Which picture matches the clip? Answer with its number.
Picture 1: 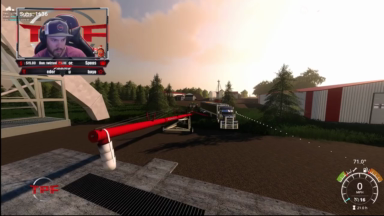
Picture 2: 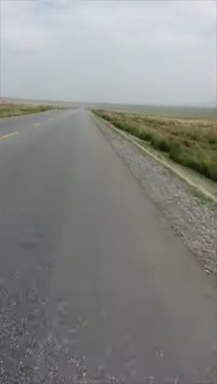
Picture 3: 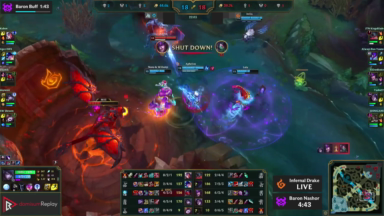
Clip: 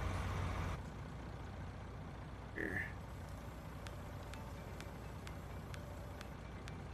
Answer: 1